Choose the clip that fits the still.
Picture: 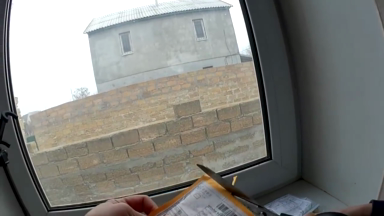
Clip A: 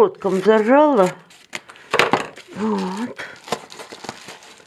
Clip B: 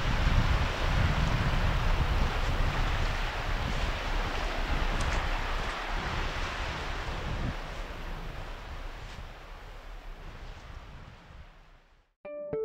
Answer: A